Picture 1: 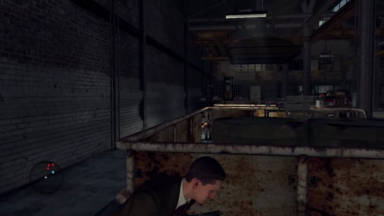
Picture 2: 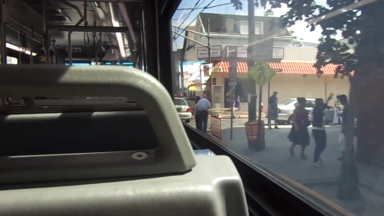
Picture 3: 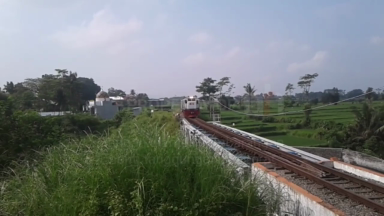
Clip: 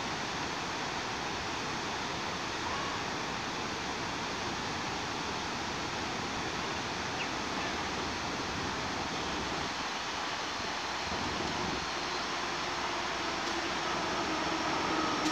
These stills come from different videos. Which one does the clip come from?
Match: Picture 3